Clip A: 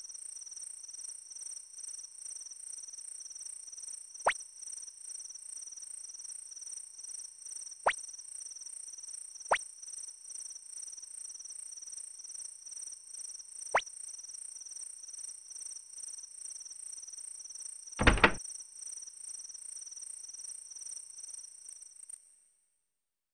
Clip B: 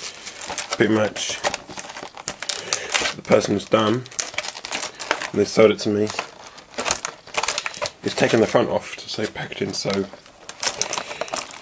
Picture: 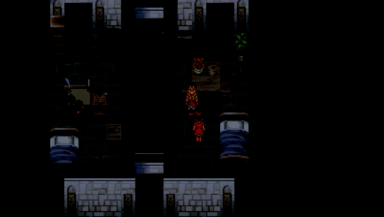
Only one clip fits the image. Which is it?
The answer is A